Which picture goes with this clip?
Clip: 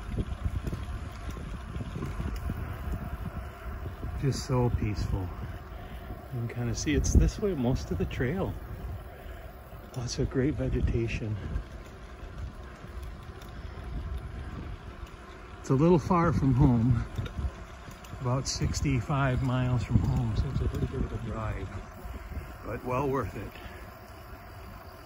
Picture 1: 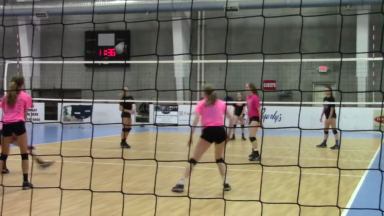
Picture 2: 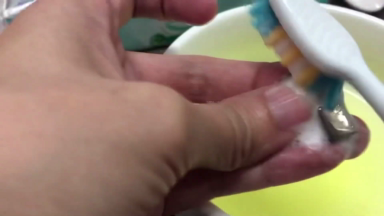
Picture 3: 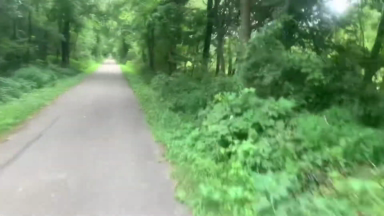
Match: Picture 3